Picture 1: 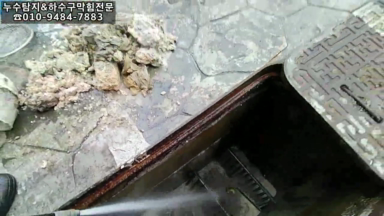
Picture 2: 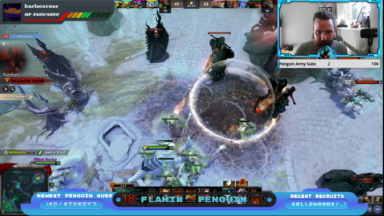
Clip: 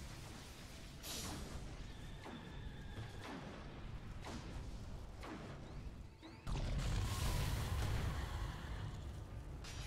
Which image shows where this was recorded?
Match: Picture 2